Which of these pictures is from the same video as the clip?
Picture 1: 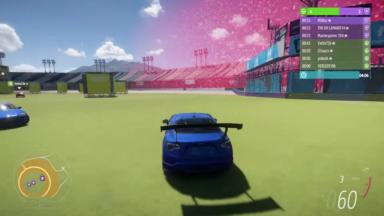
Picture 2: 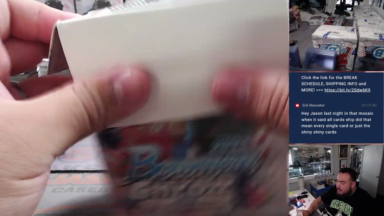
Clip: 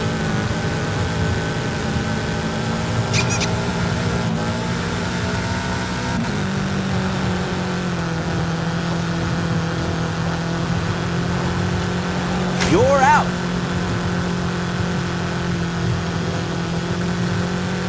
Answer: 1